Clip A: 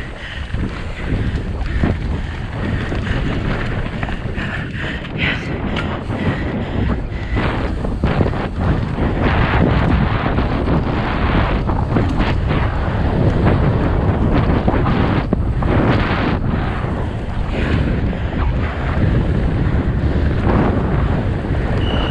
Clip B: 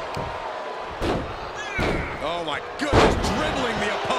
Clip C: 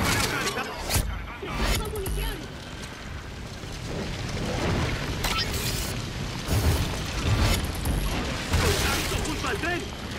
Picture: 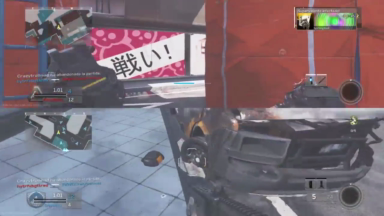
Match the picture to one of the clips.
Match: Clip C